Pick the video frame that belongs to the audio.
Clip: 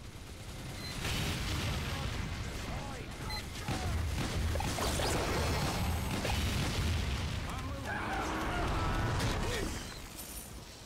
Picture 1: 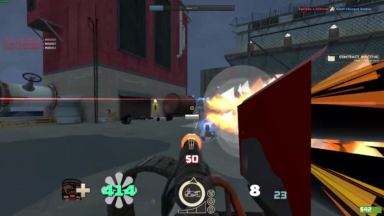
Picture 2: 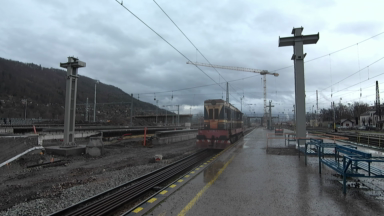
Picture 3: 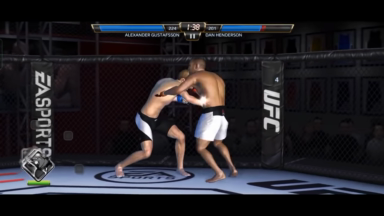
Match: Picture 1